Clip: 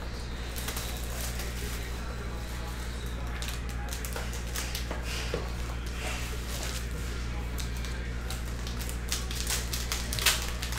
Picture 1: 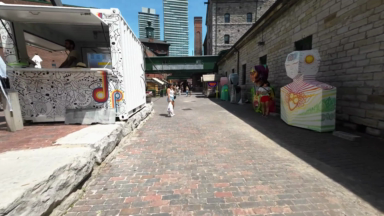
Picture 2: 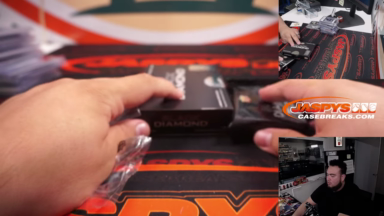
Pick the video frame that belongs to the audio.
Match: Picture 2